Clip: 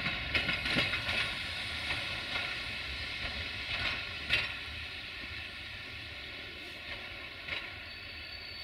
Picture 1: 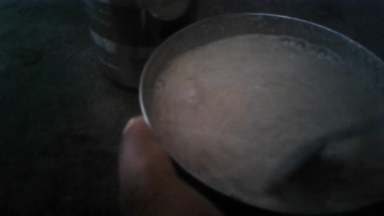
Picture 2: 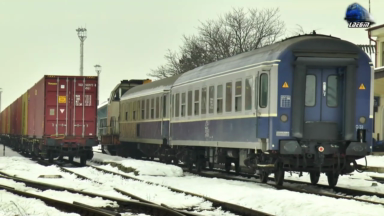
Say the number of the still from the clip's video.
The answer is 2